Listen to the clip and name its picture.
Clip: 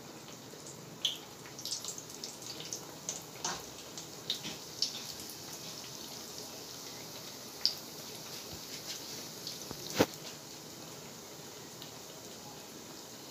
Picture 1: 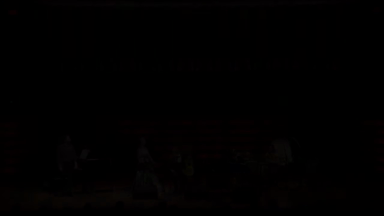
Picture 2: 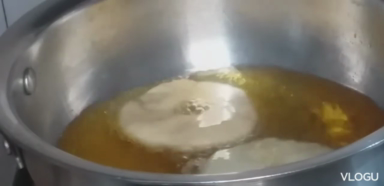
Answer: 2